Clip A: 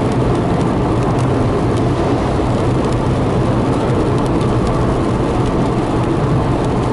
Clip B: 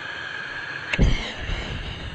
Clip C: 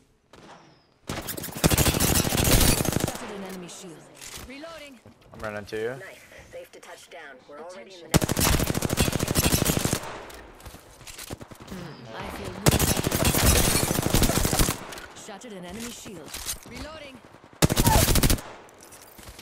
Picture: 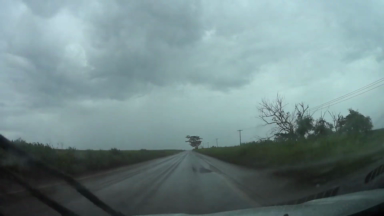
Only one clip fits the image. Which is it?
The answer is A